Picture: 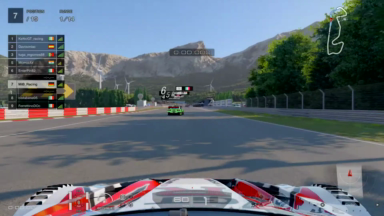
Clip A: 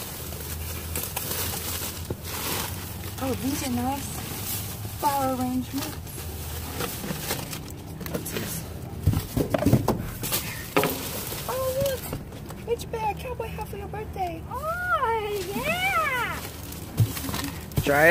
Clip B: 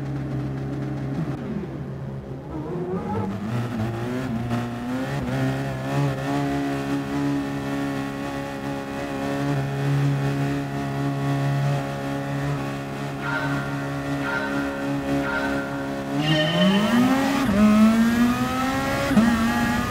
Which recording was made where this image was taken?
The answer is B